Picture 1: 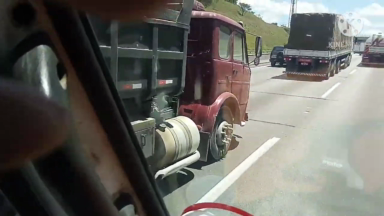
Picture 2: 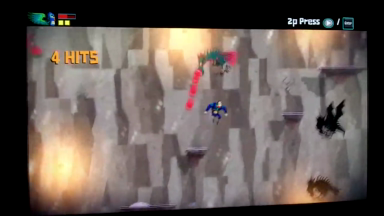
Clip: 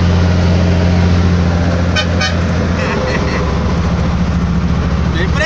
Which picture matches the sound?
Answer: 1